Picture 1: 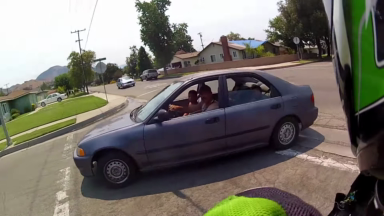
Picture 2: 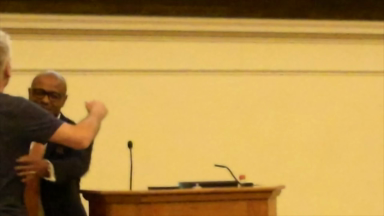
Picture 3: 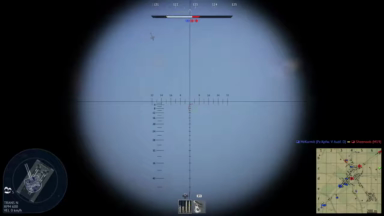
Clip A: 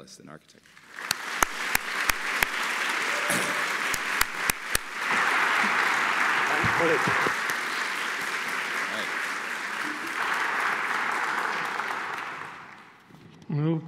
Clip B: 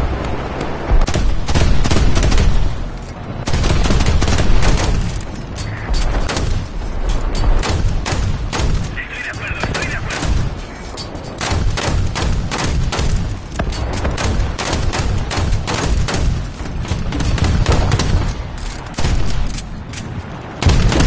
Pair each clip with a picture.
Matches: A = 2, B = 3